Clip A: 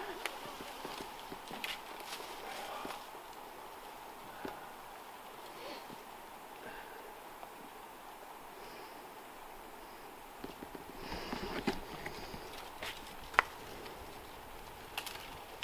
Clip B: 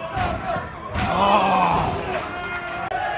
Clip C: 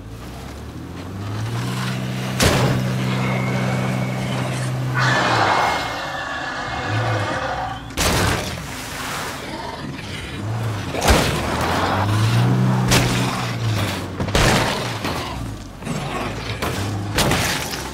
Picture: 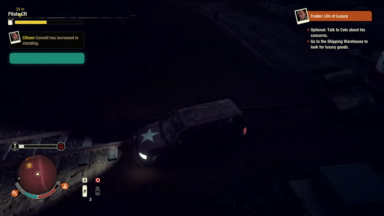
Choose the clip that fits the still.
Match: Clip C